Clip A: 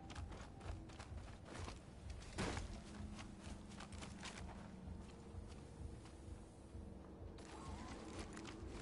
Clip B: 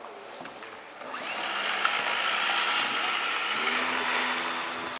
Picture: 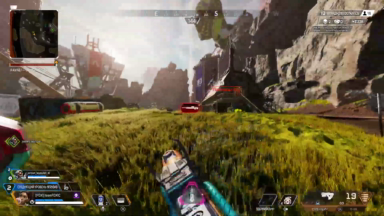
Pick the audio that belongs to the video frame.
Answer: A